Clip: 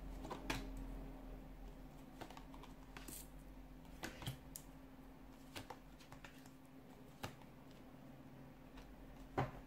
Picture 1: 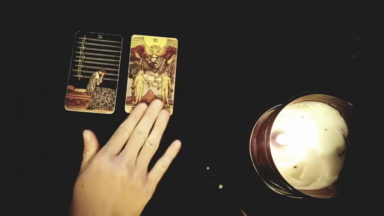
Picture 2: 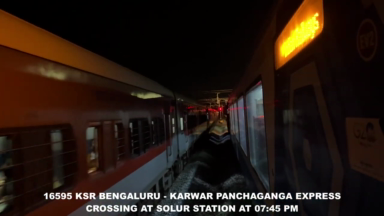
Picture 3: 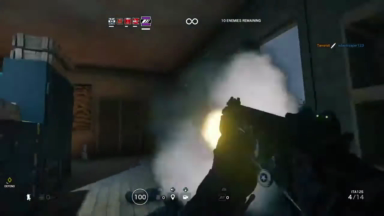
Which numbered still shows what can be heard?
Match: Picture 1